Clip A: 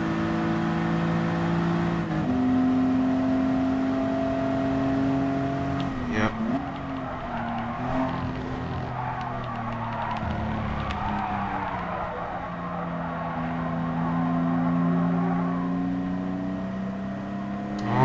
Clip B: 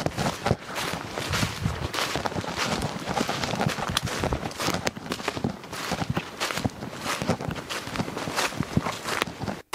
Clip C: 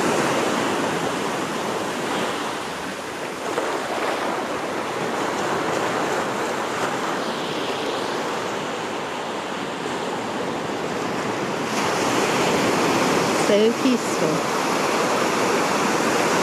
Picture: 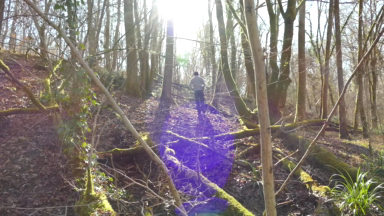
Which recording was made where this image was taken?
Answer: B